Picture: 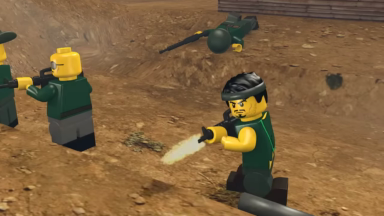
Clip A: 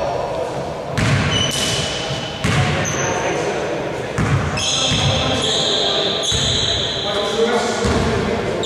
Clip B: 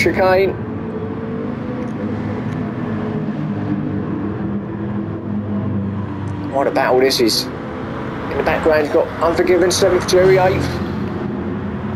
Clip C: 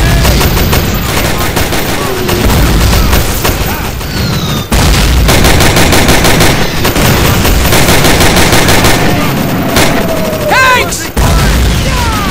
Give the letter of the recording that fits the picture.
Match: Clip C